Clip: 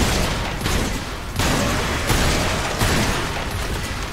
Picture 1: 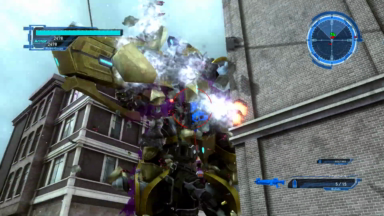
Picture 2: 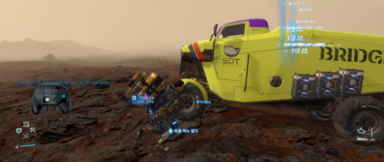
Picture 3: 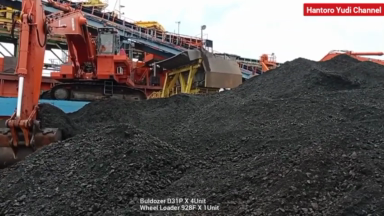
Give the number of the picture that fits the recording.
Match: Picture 1